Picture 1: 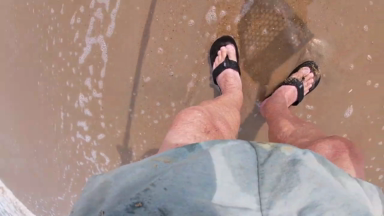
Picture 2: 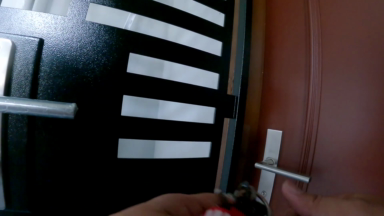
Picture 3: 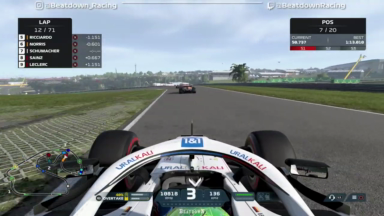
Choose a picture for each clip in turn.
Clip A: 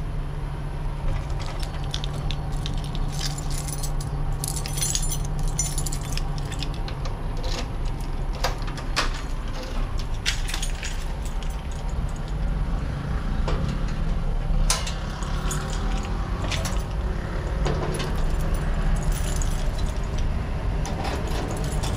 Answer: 2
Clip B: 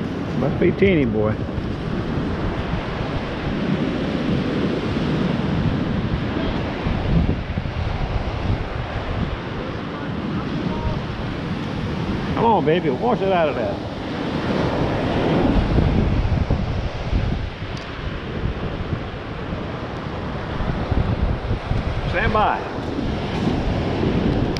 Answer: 1